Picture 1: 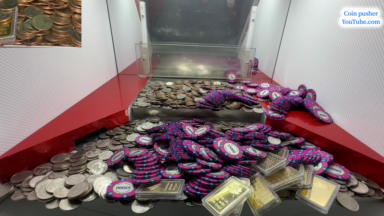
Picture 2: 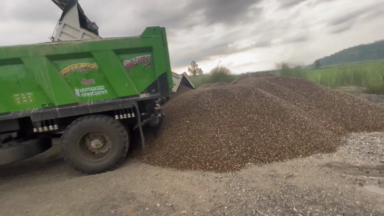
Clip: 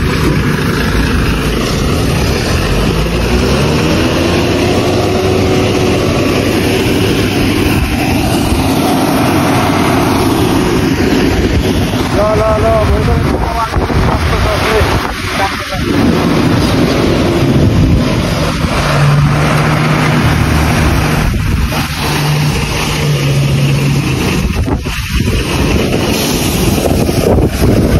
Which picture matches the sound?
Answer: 2